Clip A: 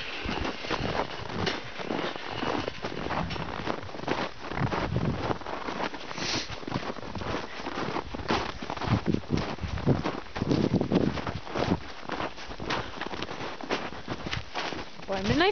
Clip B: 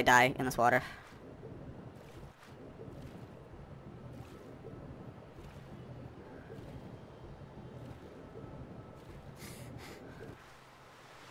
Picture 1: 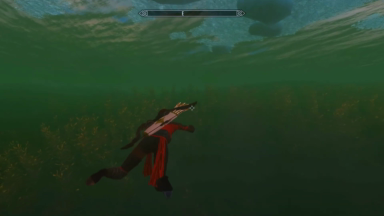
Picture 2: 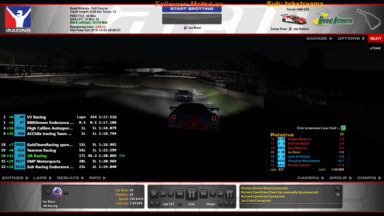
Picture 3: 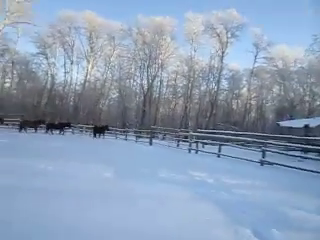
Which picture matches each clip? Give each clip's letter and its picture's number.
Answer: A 3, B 1